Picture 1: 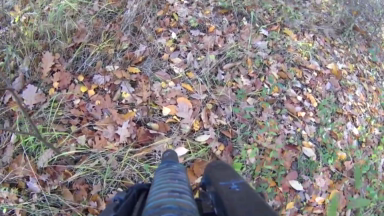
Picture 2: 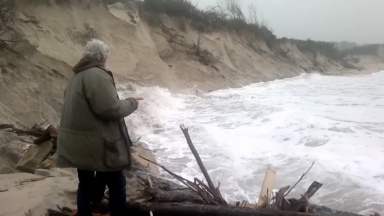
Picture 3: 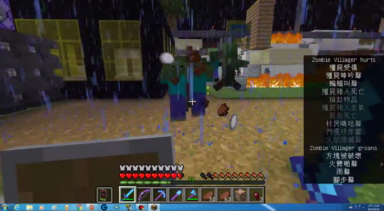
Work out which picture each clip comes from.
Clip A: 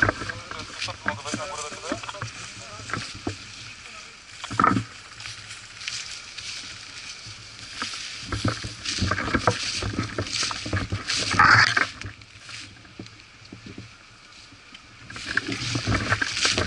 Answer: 1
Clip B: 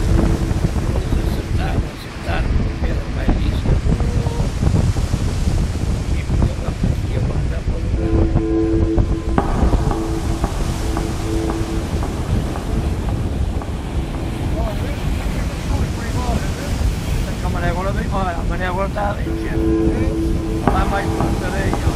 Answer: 2